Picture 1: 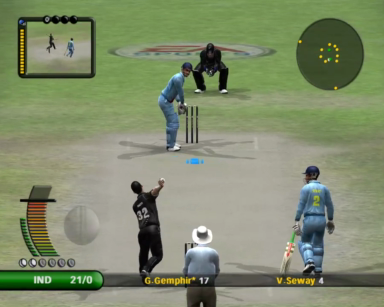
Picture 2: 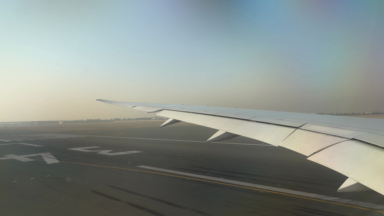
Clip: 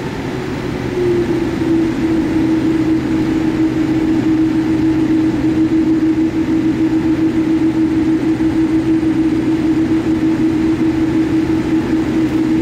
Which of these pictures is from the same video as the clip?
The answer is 2